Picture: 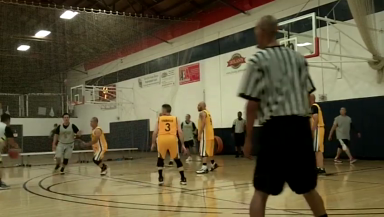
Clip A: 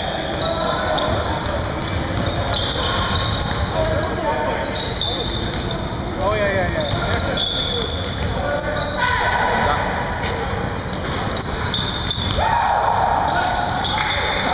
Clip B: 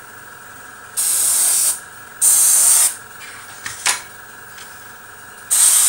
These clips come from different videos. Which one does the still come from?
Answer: A